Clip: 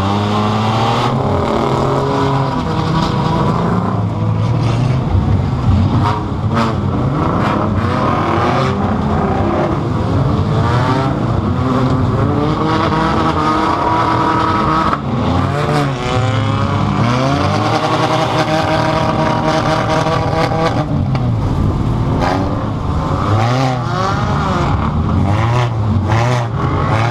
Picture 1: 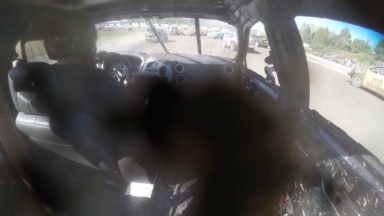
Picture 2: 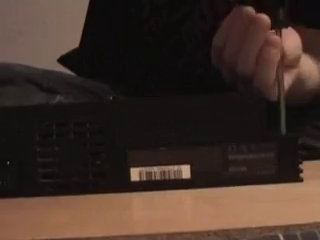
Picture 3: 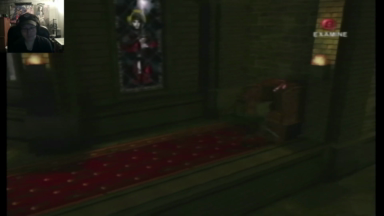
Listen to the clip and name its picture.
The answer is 1